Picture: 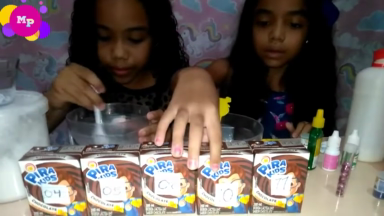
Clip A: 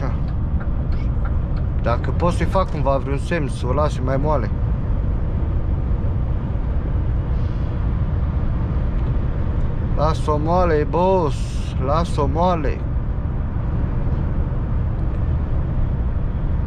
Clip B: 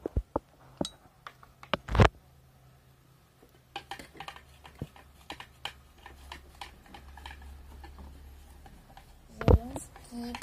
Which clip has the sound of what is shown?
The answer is B